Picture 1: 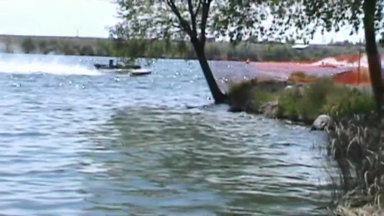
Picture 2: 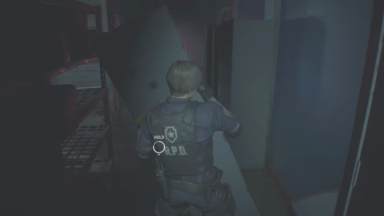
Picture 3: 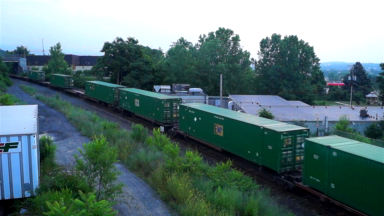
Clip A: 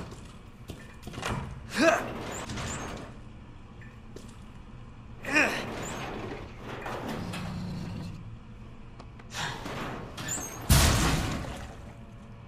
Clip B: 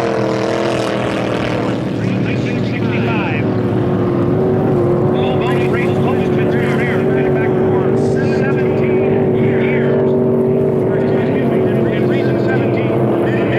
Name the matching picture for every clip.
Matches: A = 2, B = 1